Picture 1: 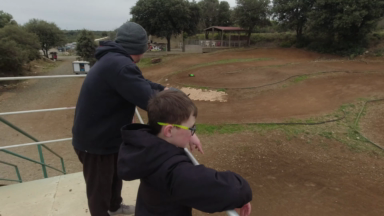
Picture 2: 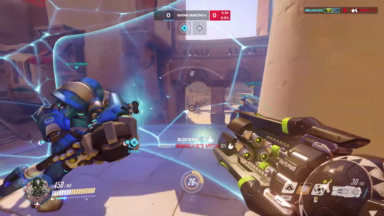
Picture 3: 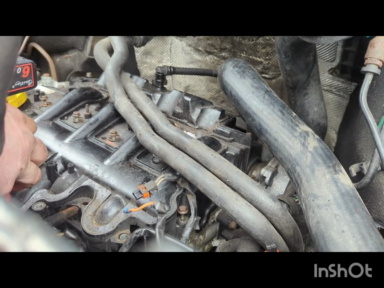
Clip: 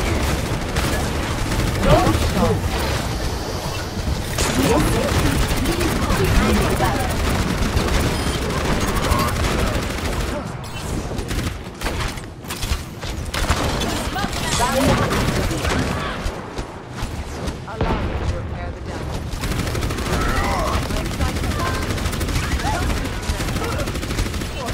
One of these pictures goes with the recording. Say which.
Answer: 2